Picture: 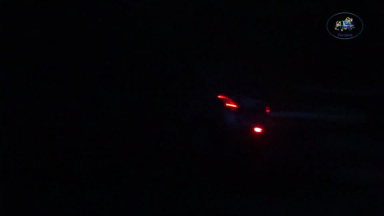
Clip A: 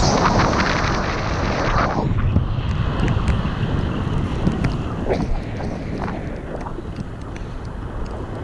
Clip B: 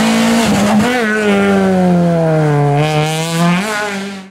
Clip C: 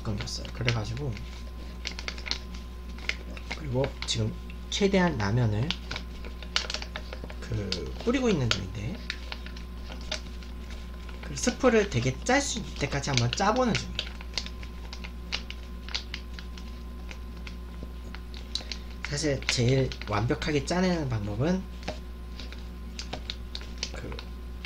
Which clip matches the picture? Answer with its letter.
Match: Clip B